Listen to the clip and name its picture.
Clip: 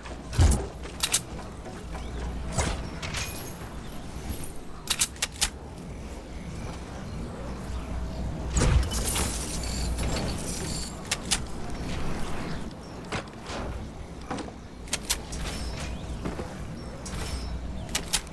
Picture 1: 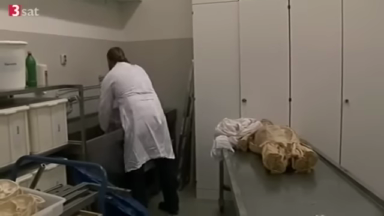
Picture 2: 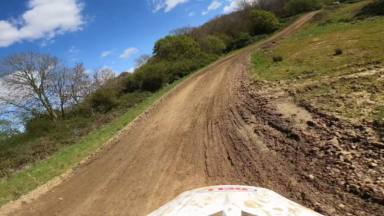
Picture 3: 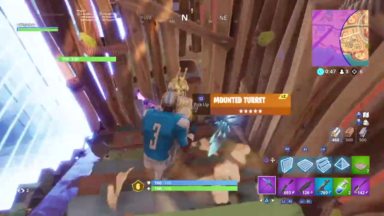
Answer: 3